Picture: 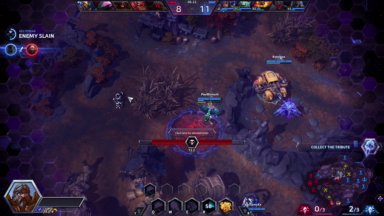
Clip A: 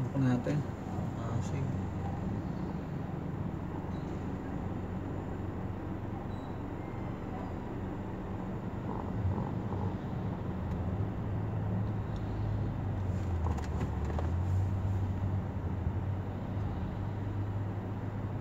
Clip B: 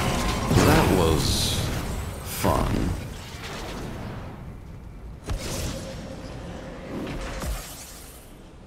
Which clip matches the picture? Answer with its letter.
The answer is B